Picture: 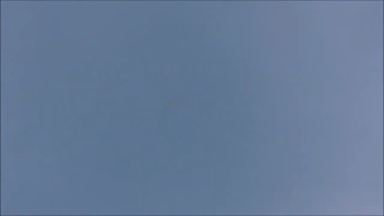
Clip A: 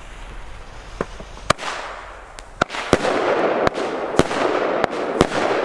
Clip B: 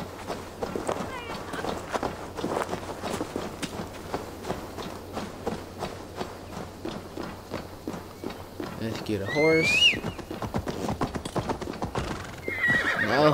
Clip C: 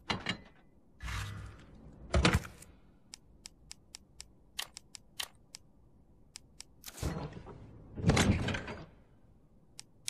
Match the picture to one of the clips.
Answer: A